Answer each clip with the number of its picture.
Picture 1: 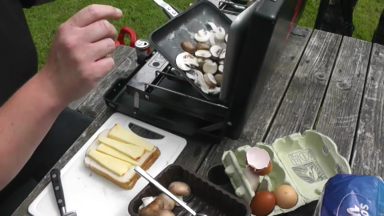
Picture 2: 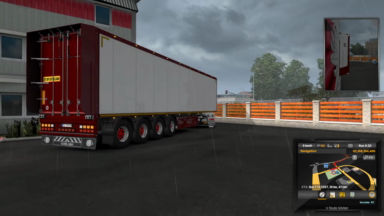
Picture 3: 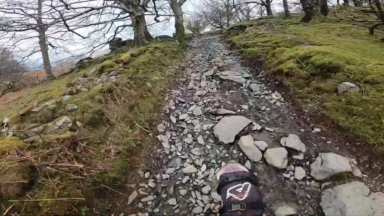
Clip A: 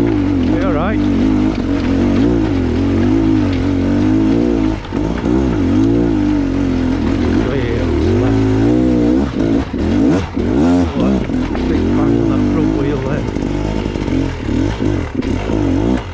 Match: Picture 3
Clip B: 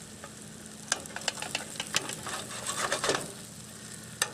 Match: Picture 1